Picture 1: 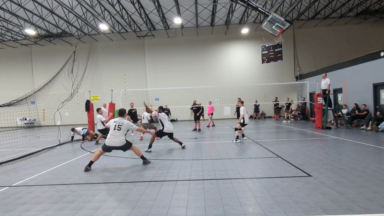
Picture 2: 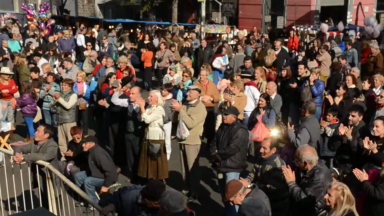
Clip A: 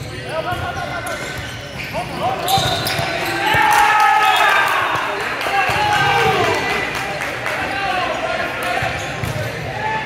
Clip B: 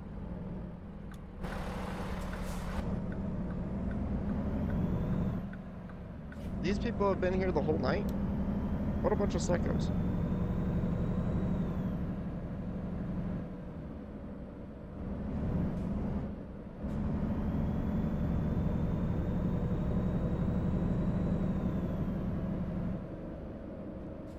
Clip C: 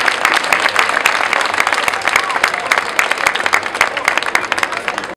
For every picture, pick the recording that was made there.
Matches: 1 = A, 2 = C